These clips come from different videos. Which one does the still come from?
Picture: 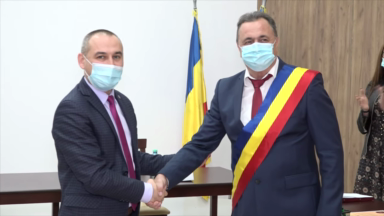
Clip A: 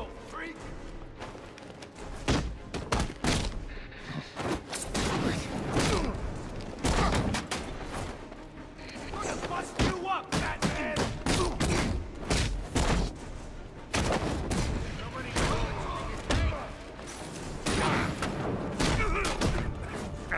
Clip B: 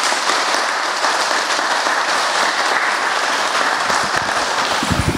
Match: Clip B